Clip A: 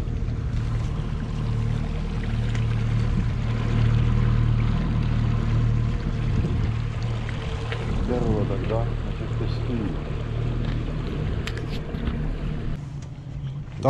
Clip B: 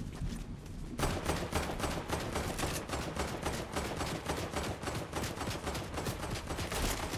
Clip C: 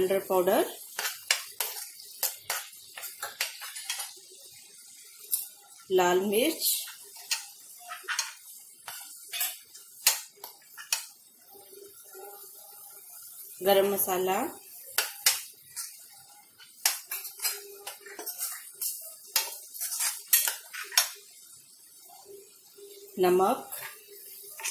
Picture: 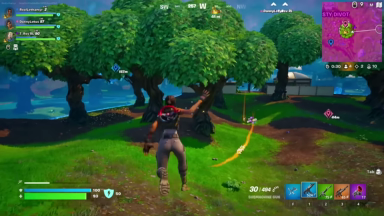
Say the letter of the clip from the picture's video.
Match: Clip B